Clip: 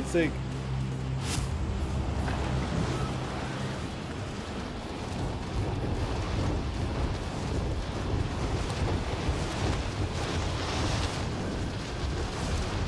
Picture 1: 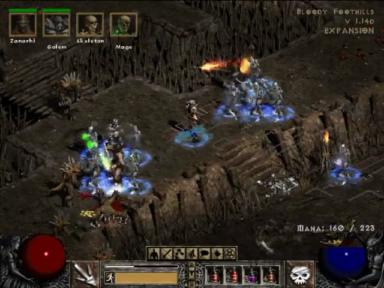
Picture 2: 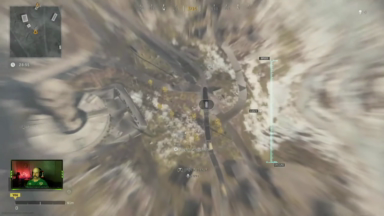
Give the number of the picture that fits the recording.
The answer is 2